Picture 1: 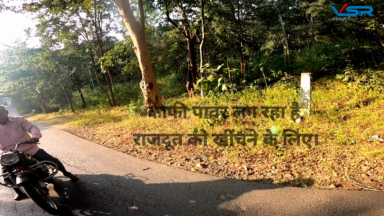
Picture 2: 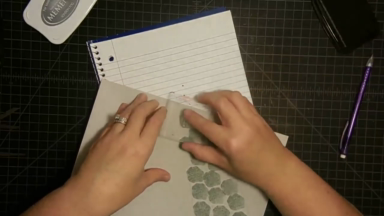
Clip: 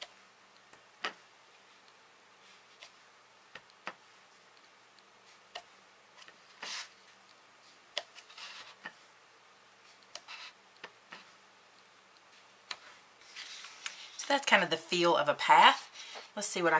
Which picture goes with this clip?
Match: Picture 2